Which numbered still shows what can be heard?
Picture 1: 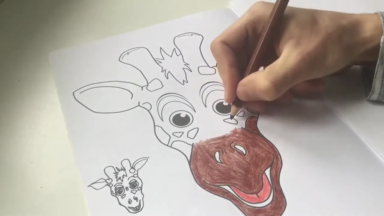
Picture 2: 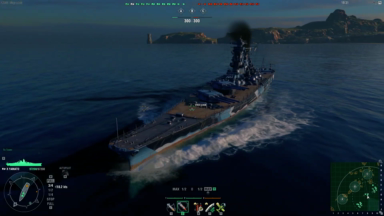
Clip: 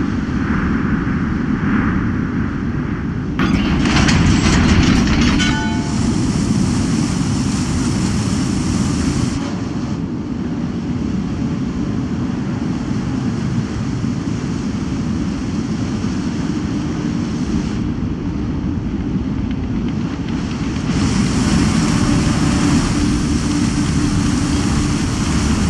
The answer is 2